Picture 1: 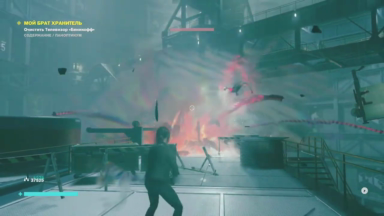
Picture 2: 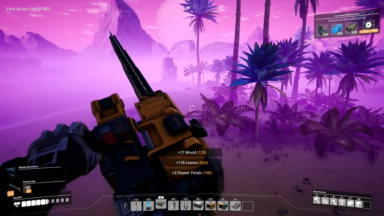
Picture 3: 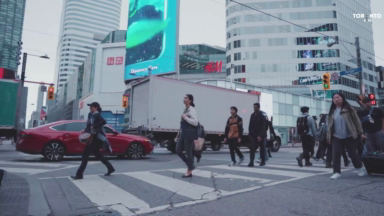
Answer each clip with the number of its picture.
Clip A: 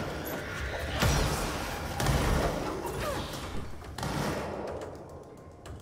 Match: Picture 1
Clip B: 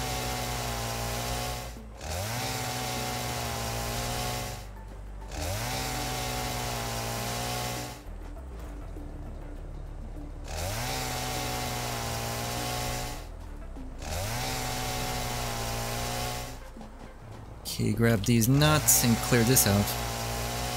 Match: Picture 2